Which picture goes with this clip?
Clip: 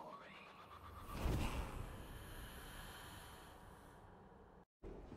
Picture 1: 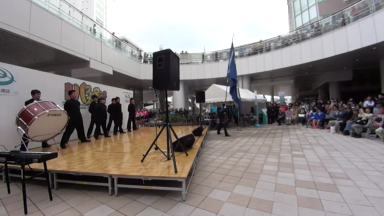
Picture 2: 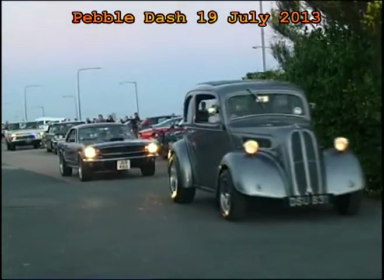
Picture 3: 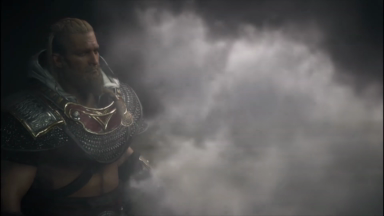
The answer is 3